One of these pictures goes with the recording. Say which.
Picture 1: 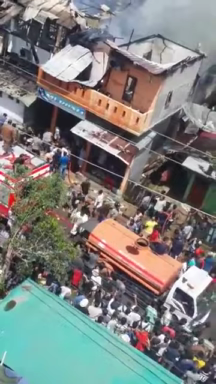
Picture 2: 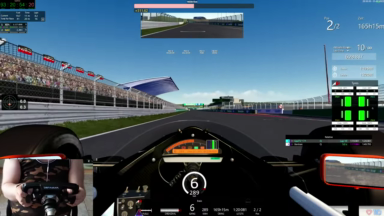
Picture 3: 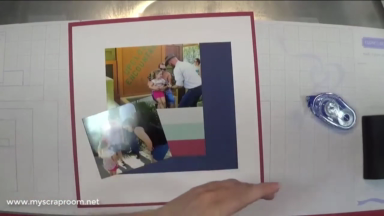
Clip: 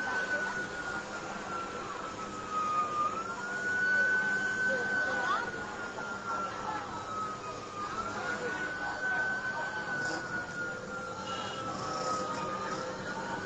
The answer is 1